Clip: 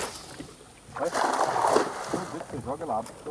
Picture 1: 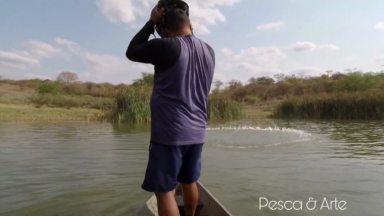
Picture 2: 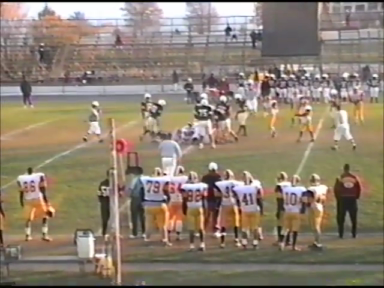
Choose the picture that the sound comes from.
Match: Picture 1